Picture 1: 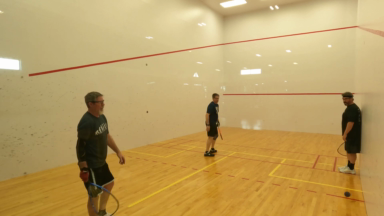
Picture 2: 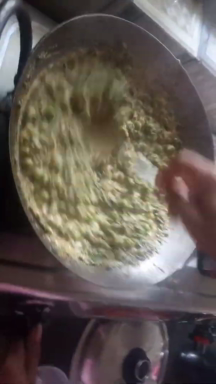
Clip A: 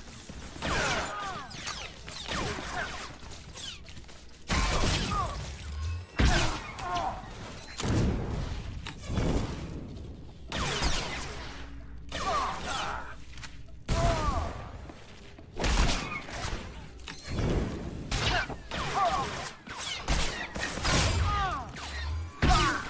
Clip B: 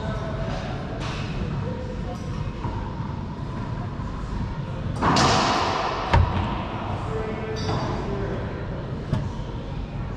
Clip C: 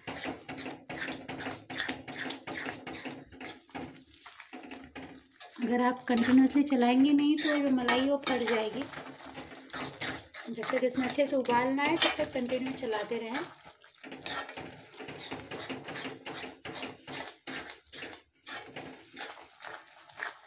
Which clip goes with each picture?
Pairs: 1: B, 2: C